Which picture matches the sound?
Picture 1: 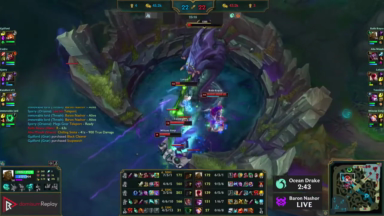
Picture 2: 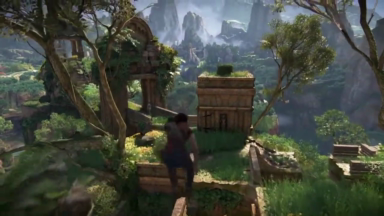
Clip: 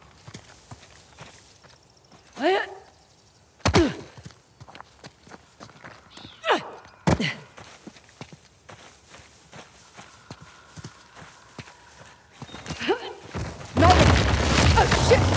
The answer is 2